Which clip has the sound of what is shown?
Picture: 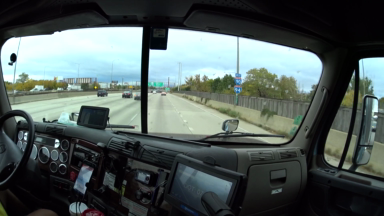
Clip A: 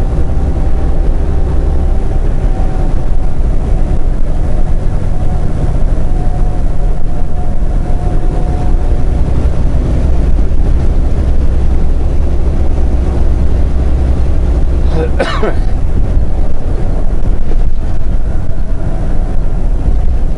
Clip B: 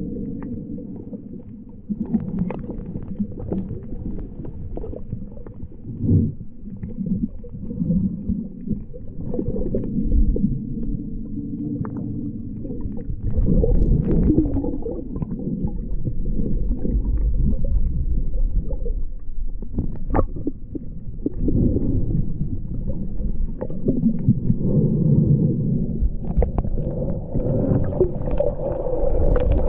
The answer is A